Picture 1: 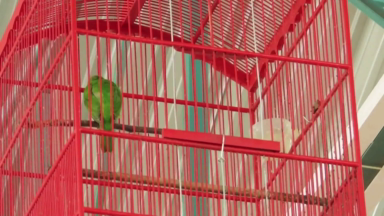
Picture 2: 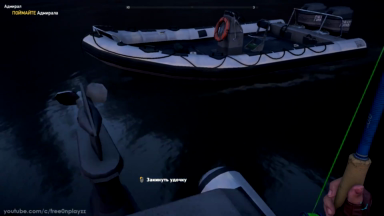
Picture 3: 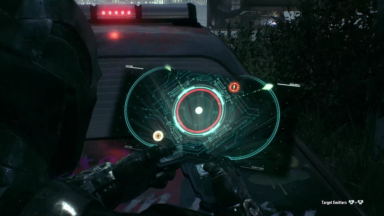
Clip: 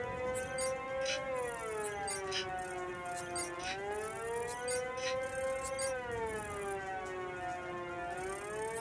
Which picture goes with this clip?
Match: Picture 3